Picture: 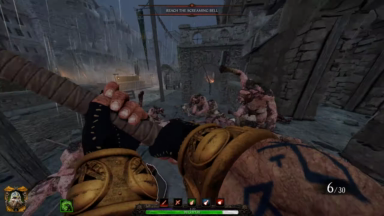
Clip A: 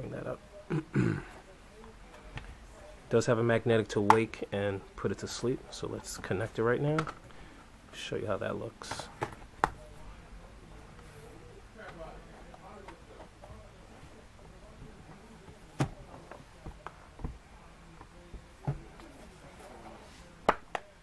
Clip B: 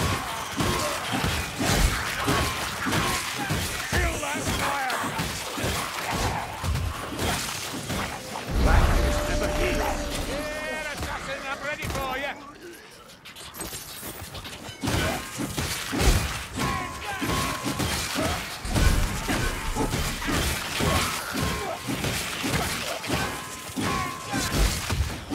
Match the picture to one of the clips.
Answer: B